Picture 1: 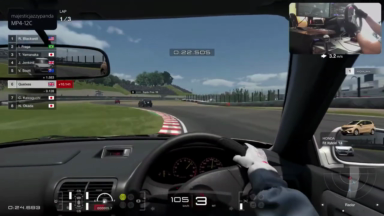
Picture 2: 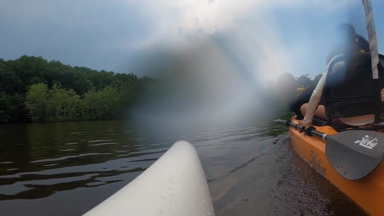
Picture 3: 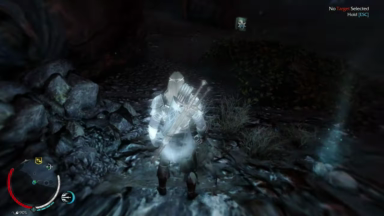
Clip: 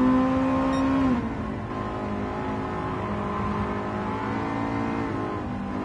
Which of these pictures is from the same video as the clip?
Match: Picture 1